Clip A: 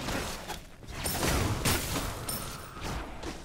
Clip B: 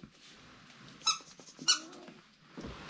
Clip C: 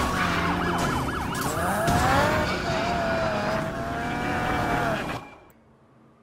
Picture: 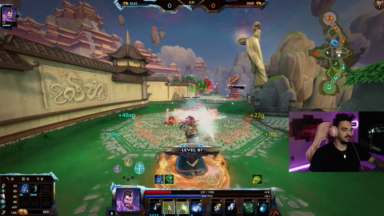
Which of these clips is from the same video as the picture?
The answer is A